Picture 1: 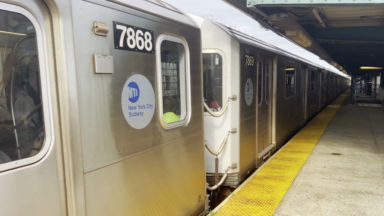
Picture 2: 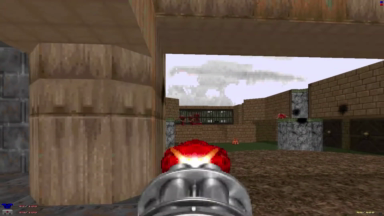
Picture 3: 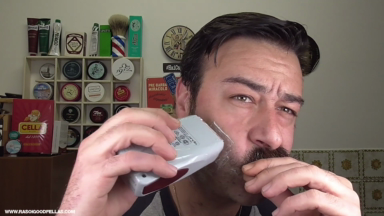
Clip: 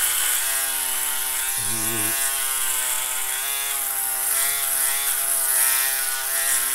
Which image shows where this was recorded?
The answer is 3